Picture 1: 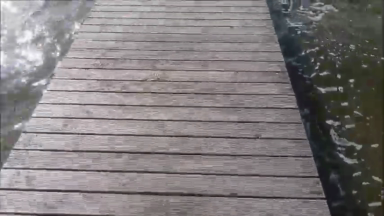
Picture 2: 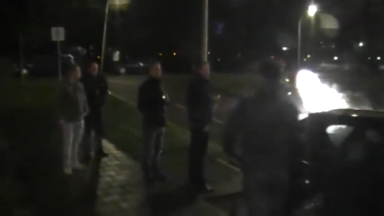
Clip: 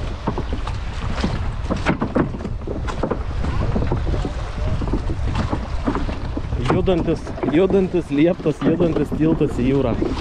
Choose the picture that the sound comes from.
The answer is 1